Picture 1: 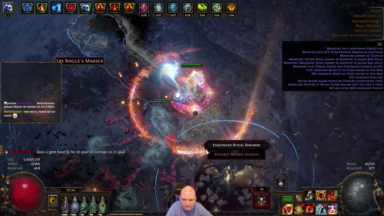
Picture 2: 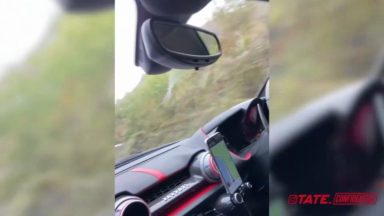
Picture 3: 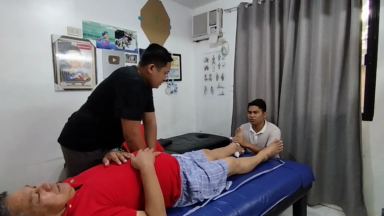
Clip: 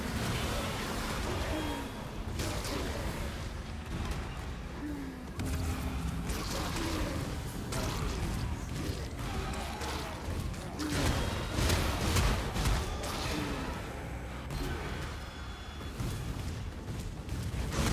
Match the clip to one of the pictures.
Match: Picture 1